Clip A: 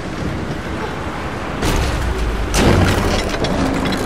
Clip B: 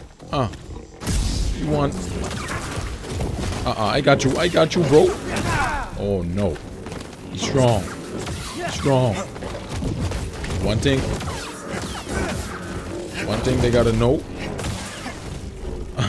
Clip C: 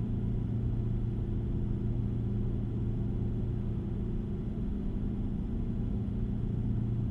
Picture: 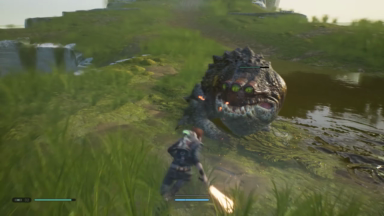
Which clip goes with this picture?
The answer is B